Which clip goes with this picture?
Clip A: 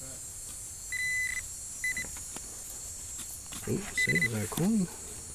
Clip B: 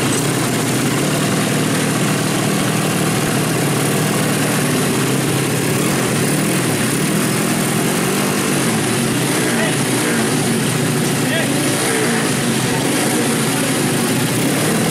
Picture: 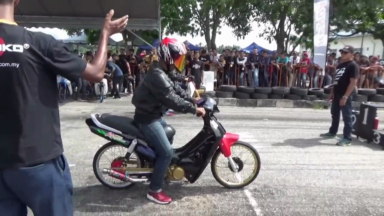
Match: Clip B